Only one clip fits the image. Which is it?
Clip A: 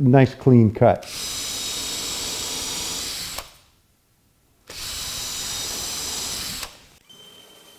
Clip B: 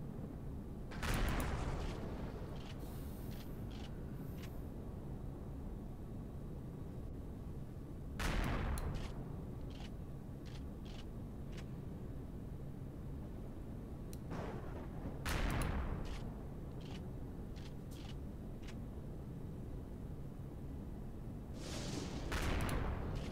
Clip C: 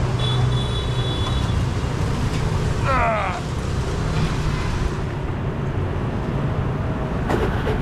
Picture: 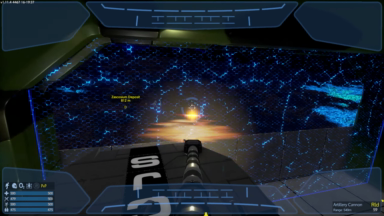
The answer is B